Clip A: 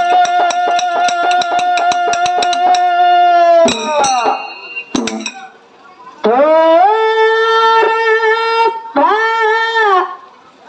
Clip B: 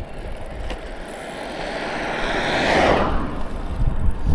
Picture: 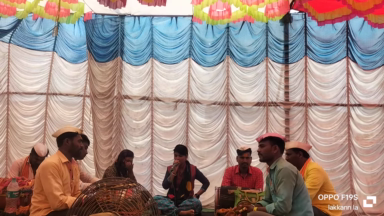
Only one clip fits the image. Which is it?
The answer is A